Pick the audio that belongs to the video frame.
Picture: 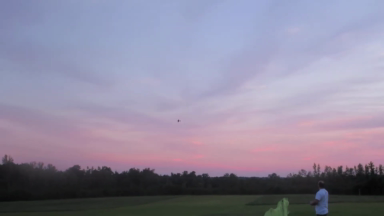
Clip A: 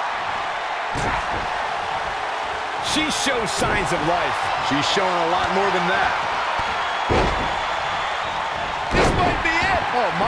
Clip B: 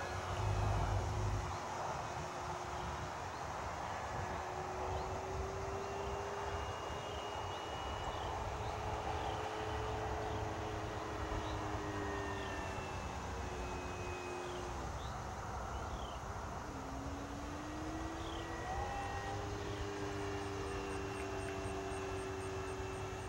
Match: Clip B